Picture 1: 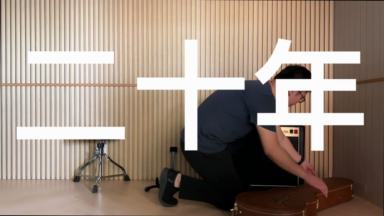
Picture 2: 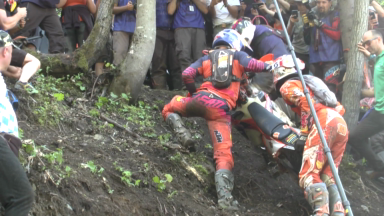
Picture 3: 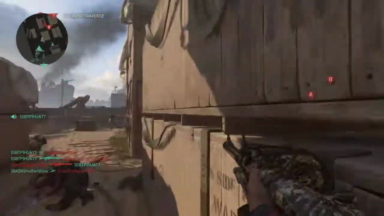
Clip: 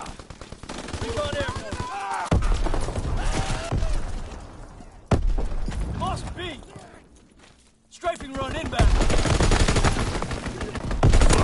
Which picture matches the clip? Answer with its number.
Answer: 3